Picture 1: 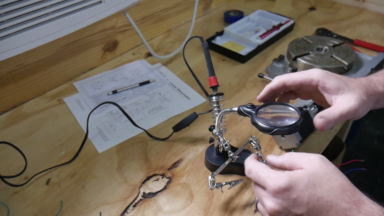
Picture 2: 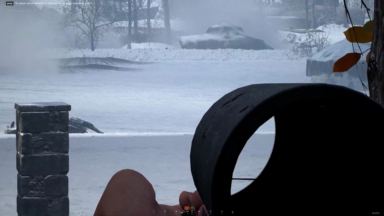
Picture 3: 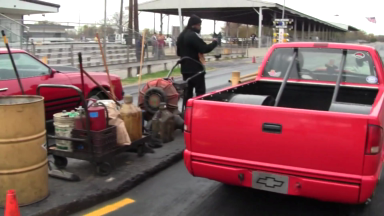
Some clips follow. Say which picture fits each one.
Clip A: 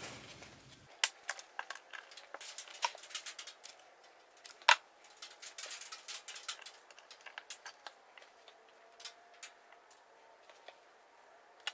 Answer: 1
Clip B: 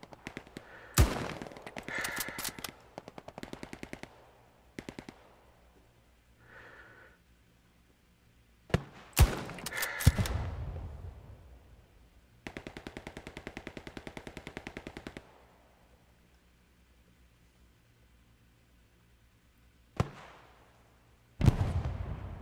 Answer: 2